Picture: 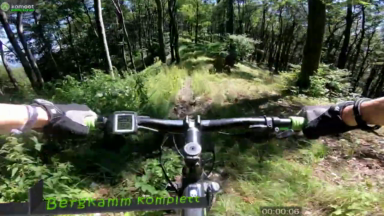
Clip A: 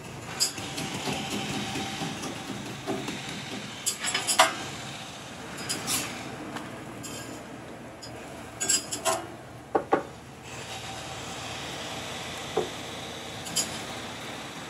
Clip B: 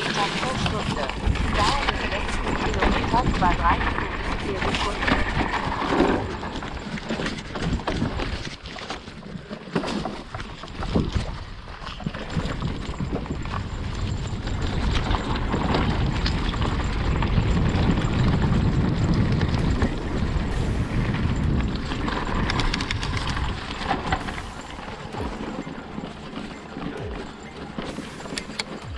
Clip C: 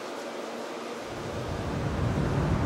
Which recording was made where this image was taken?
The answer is B